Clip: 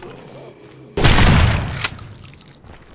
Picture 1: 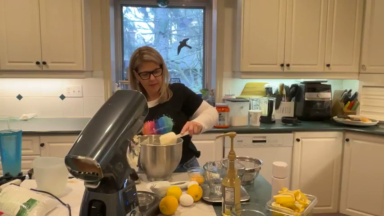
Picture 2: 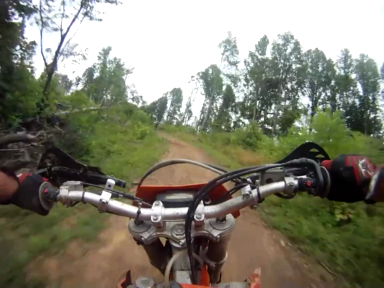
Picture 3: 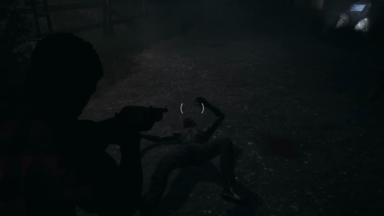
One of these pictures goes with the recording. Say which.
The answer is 3